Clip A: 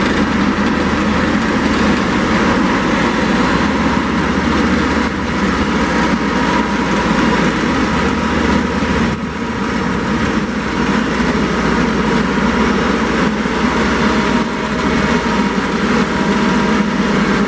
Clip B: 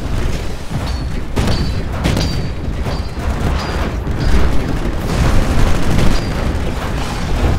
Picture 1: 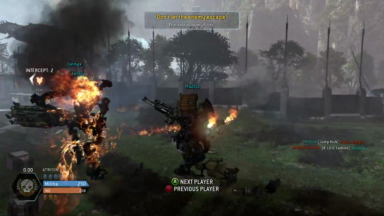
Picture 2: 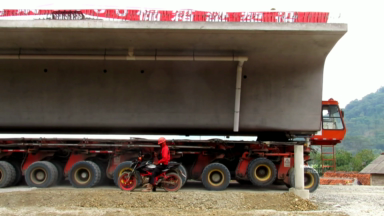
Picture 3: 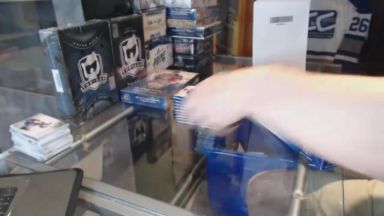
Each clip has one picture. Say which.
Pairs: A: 2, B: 1